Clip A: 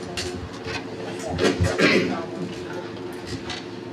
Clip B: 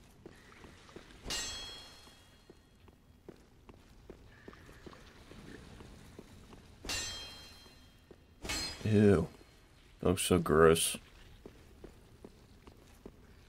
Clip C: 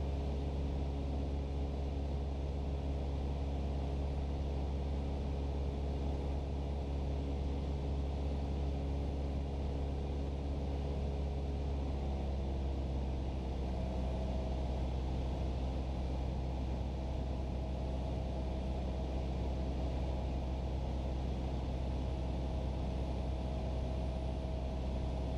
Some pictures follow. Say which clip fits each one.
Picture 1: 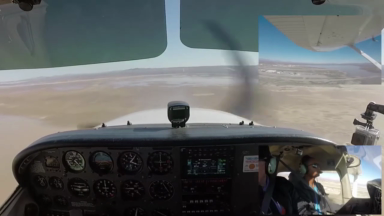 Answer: C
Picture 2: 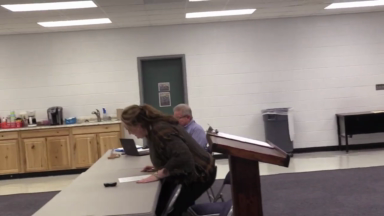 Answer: A